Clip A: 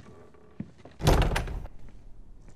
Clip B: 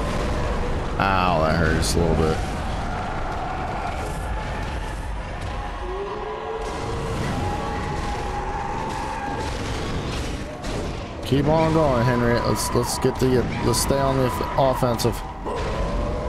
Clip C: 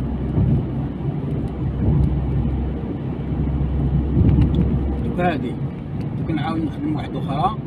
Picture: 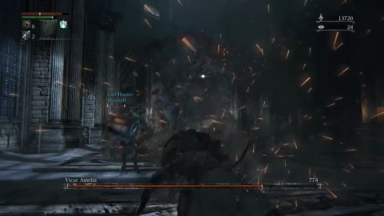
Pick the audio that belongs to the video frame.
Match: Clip B